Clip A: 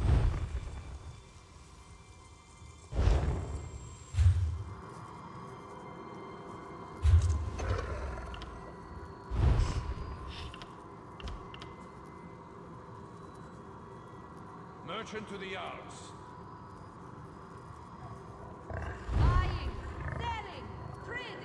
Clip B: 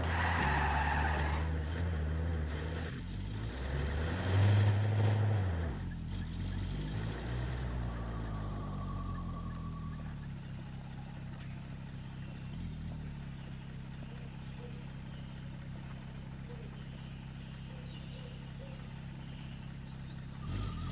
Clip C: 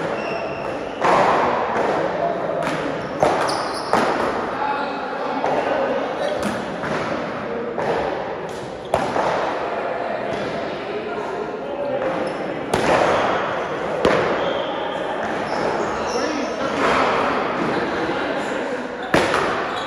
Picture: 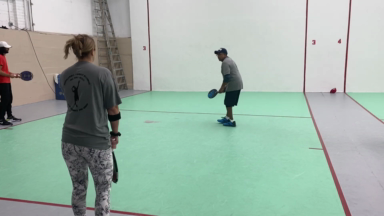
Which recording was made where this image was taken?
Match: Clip C